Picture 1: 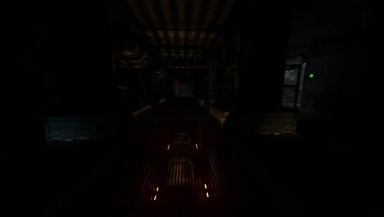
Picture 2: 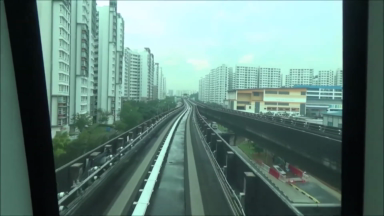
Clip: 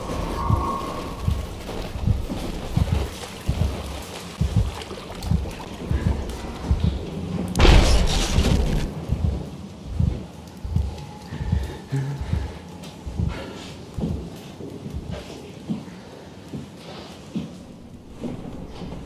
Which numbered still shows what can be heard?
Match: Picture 1